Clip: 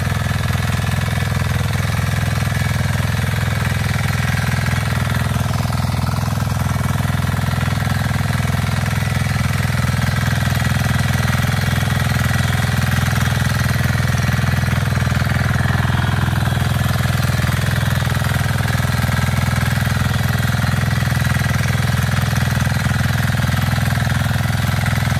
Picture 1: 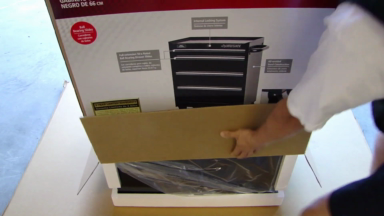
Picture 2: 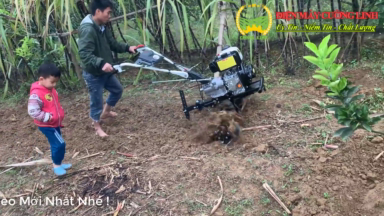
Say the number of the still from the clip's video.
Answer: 2